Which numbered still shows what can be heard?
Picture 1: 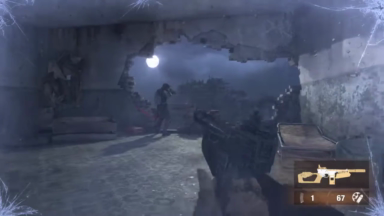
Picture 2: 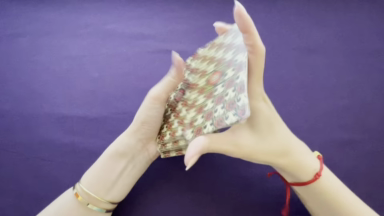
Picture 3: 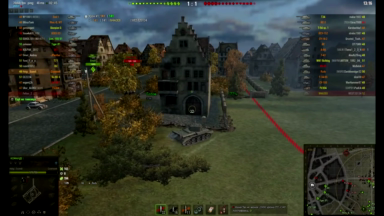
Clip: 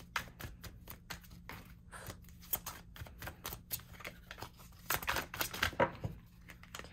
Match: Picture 2